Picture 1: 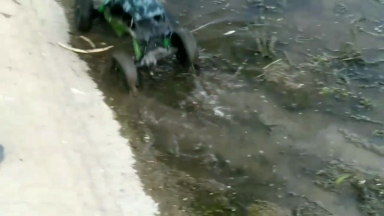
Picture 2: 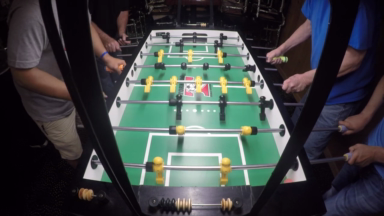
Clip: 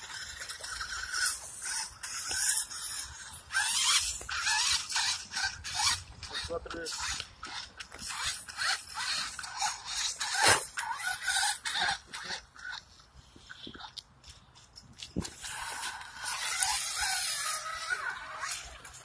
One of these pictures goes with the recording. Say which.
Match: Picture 1